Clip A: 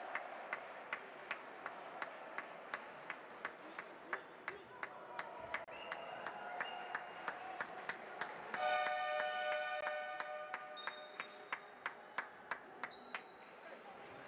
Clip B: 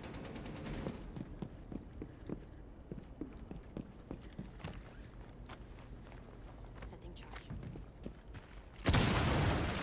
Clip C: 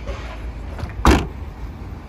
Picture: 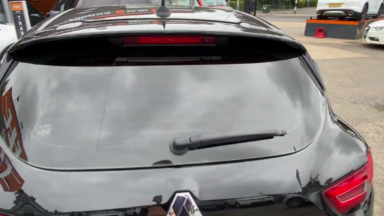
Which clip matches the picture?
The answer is C